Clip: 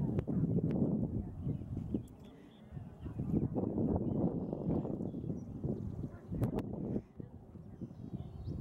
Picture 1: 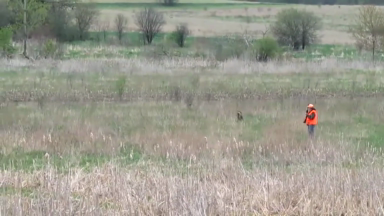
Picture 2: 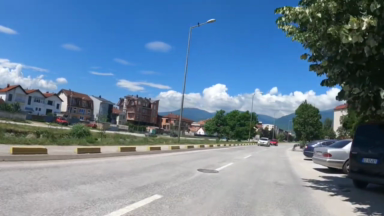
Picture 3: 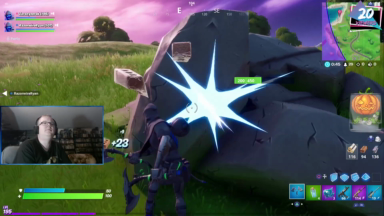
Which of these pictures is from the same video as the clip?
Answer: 1